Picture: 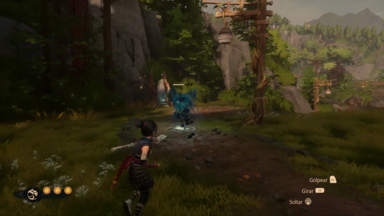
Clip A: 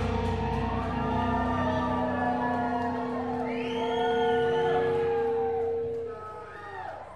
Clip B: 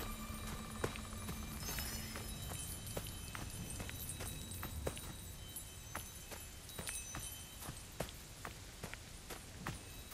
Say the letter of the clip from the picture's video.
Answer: B